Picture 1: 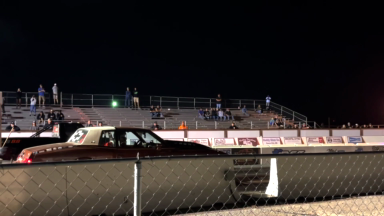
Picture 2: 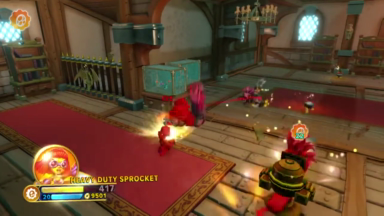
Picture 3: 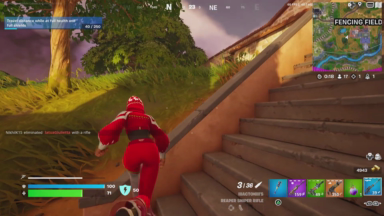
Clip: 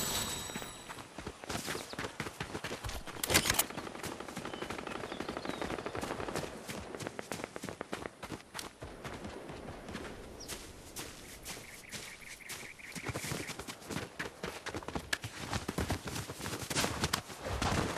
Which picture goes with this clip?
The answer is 3